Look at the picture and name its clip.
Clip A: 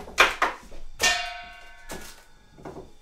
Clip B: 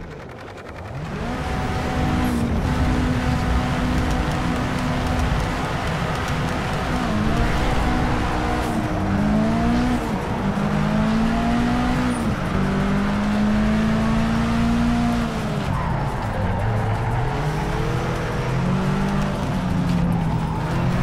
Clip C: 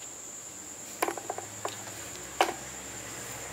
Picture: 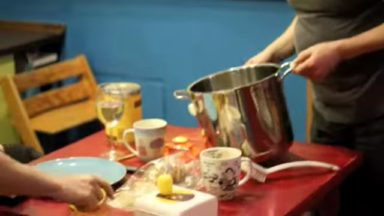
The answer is A